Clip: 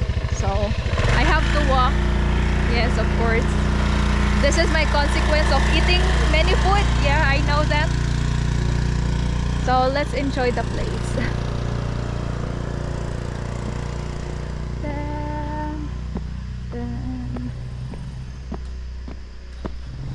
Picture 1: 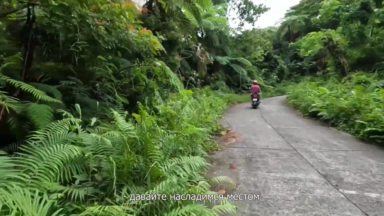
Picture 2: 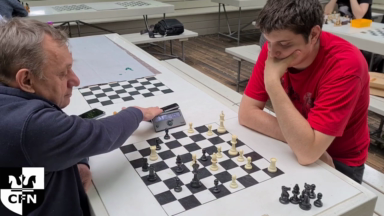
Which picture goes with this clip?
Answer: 1